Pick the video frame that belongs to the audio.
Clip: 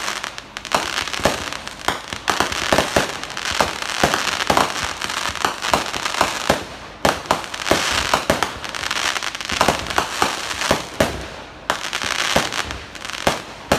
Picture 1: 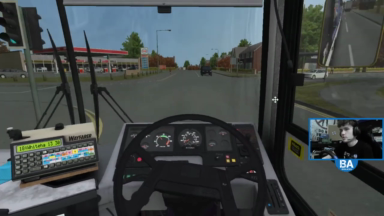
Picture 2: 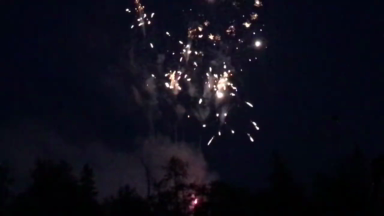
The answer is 2